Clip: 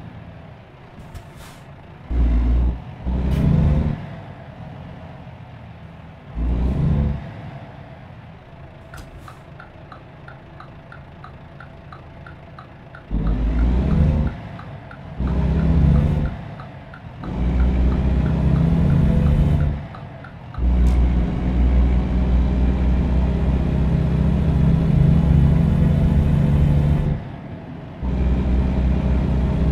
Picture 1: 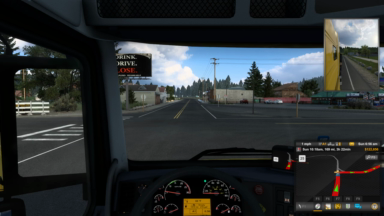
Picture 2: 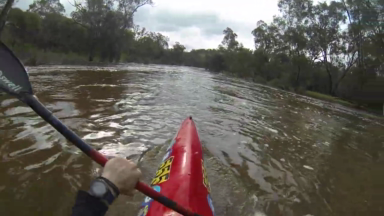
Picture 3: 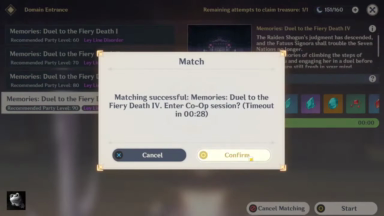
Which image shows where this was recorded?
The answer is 1